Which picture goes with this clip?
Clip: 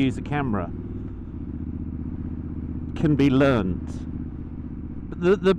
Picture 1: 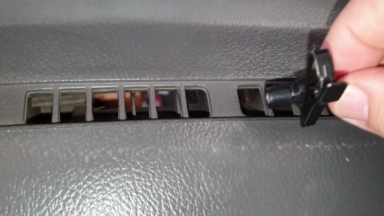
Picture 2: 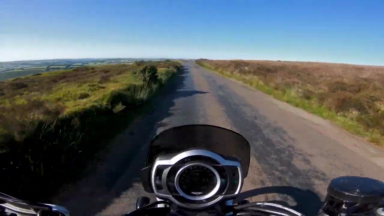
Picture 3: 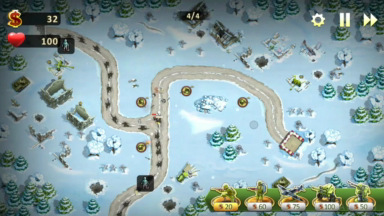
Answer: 2